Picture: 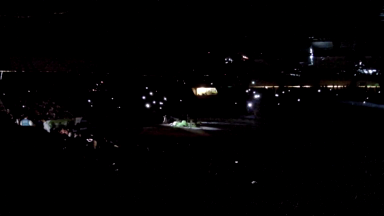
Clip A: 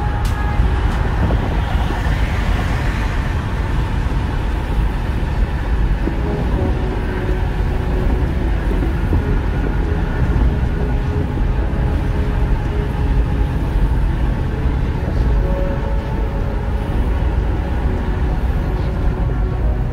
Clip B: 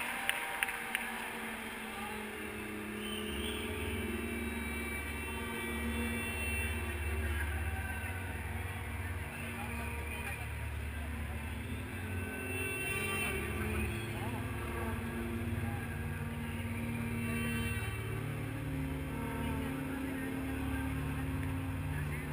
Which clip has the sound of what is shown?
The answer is B